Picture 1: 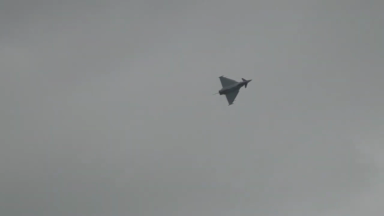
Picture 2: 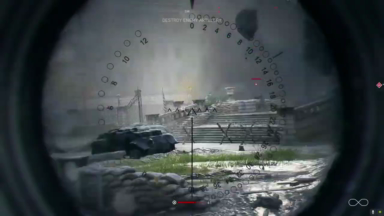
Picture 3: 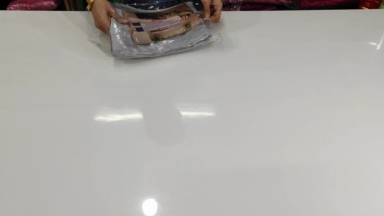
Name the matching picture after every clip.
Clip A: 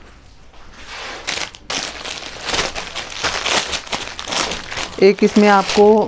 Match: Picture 3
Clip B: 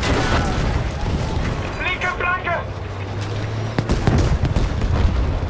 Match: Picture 2